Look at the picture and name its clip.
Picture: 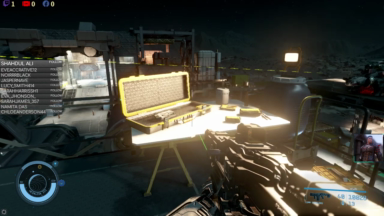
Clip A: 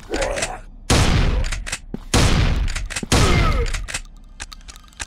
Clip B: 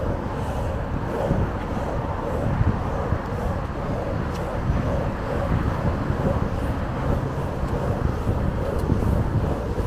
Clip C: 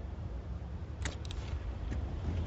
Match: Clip C